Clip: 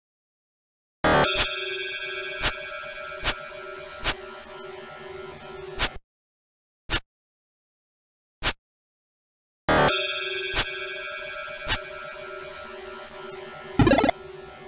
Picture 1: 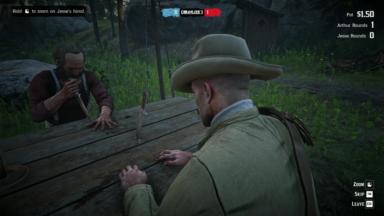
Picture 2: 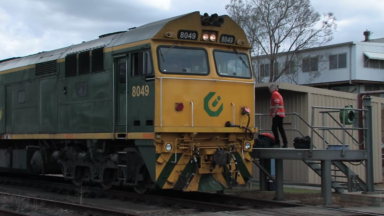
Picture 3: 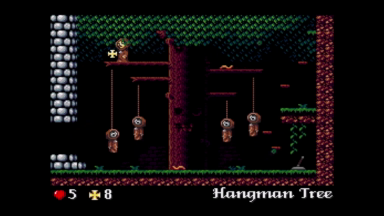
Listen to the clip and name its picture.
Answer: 3